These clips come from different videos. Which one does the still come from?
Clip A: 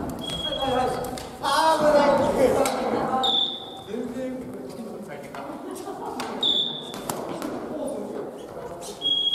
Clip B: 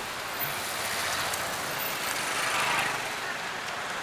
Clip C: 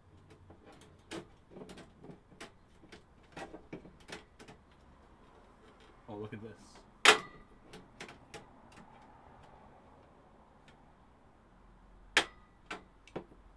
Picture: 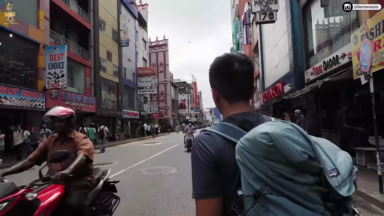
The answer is B